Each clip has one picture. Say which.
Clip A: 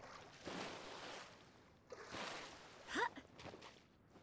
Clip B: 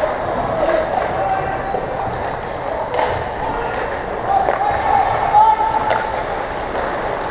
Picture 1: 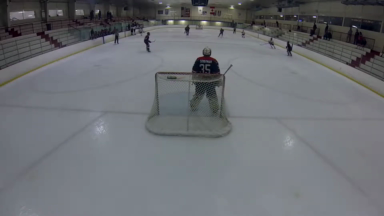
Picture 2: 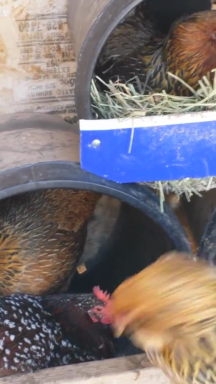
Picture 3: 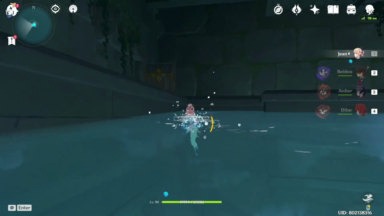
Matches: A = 3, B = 1